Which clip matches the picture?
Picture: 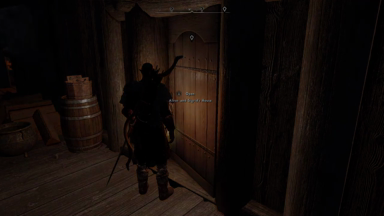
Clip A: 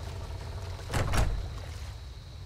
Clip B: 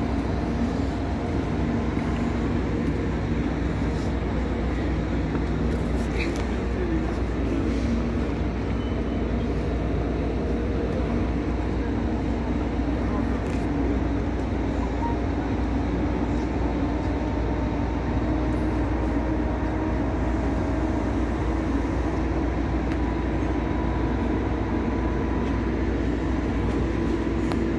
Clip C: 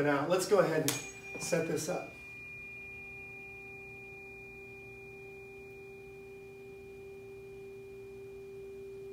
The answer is A